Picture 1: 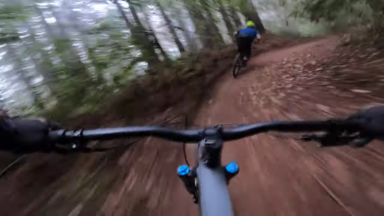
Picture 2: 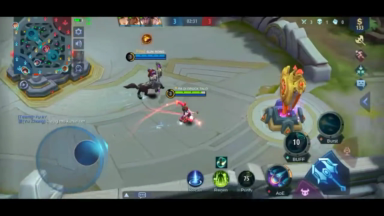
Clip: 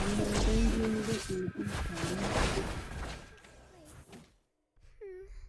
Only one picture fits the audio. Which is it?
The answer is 2